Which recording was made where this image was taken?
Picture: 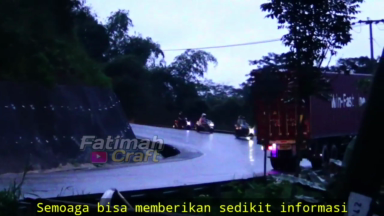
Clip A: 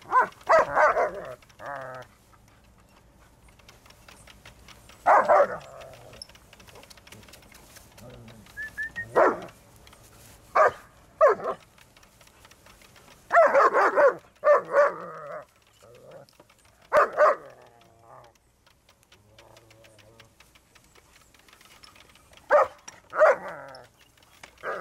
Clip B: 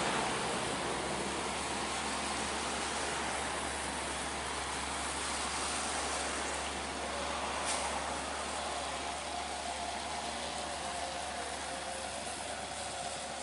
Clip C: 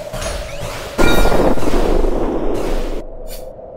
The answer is B